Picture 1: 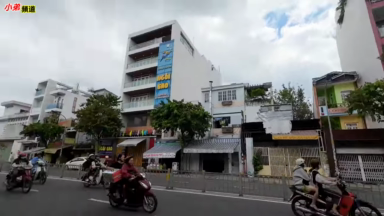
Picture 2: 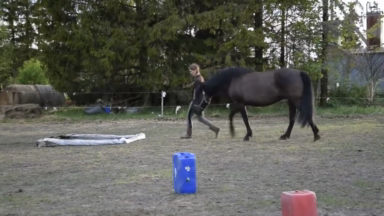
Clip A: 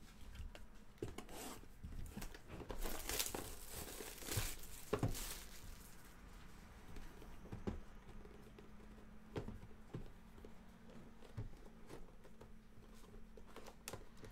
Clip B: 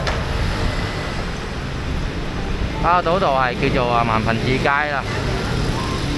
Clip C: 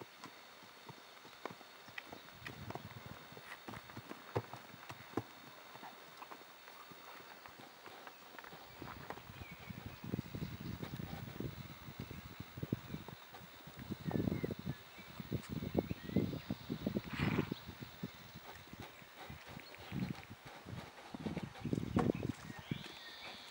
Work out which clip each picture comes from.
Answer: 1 B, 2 C